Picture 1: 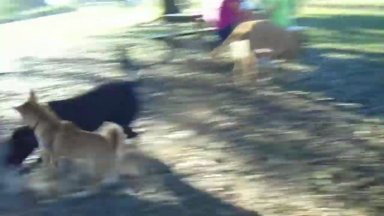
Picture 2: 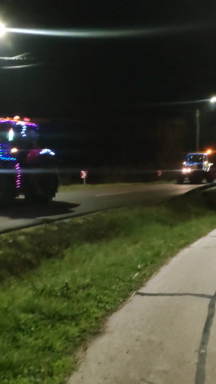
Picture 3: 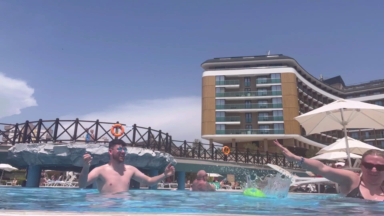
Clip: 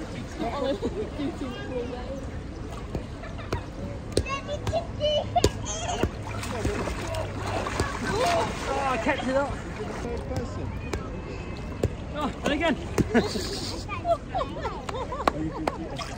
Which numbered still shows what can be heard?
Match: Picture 3